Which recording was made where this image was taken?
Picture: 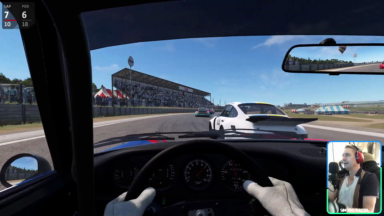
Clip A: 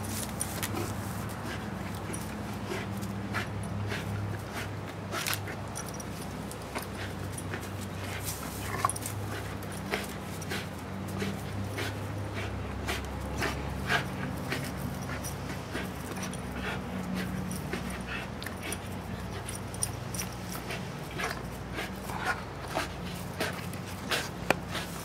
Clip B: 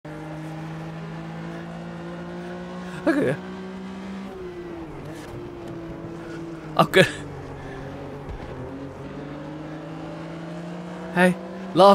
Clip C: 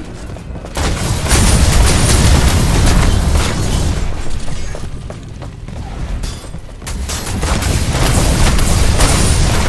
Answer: B